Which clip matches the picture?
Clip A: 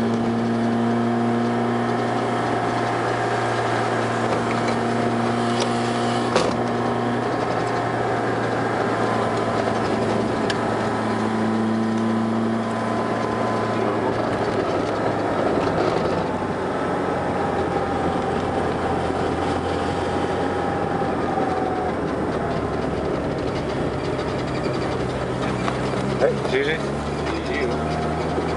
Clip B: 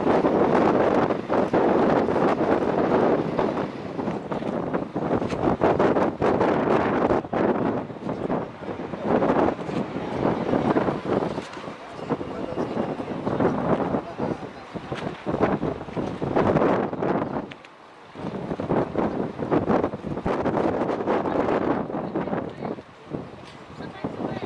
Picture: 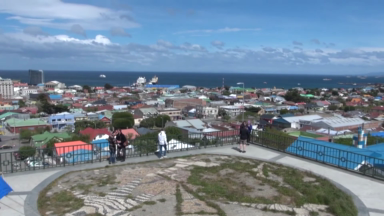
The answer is B